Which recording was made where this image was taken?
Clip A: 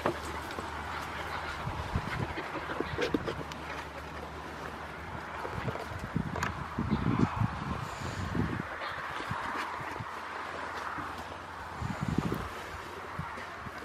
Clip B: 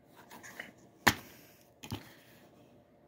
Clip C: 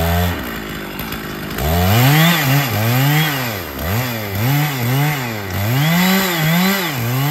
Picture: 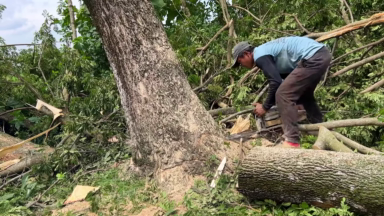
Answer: C